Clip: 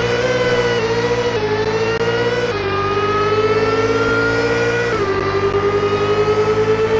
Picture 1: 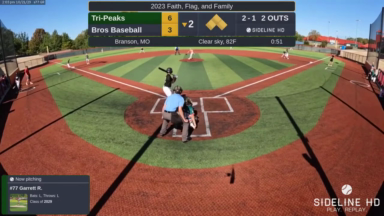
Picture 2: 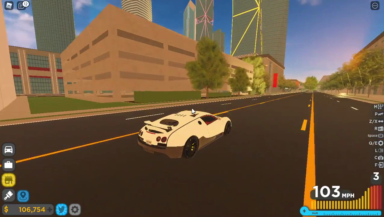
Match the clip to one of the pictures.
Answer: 2